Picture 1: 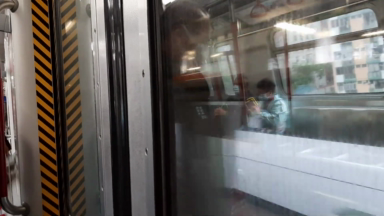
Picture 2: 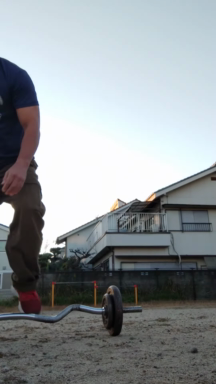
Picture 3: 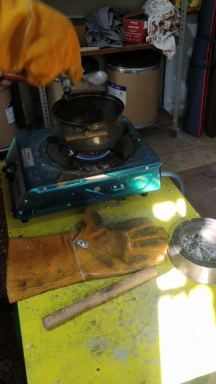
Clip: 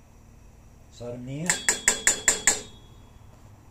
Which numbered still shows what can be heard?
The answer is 3